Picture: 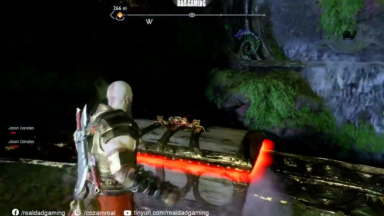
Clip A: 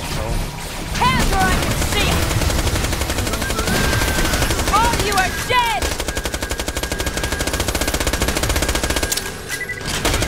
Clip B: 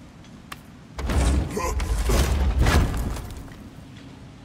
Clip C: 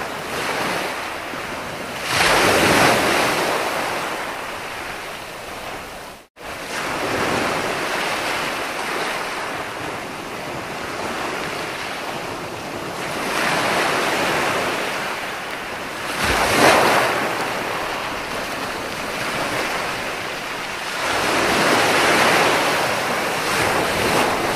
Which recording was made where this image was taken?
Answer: B